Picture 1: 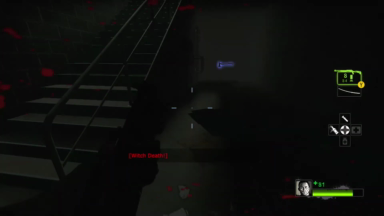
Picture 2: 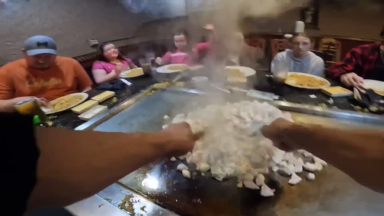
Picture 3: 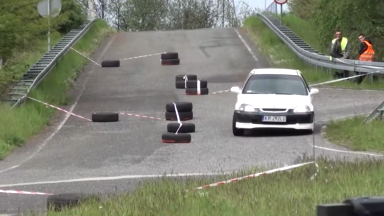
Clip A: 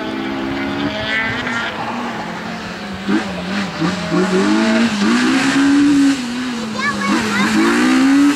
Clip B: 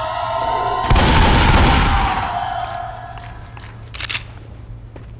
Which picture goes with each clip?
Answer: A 3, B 1